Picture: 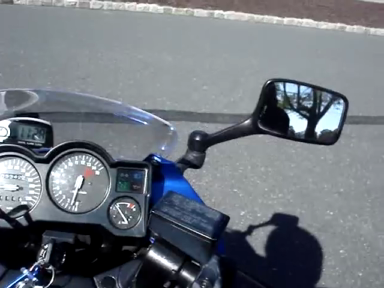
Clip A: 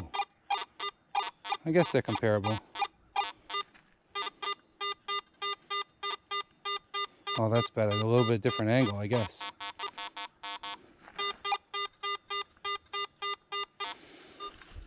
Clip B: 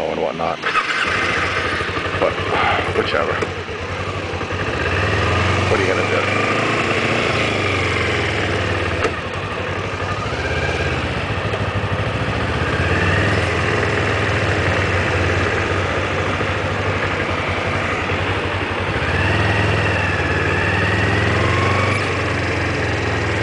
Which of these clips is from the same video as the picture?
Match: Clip B